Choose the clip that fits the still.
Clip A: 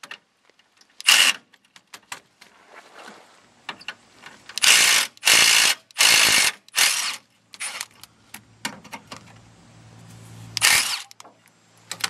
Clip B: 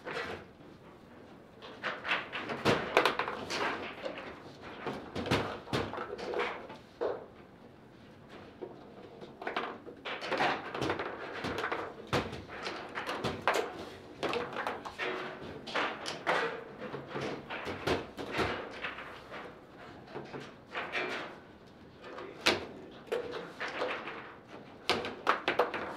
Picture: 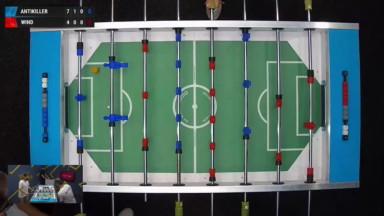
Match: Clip B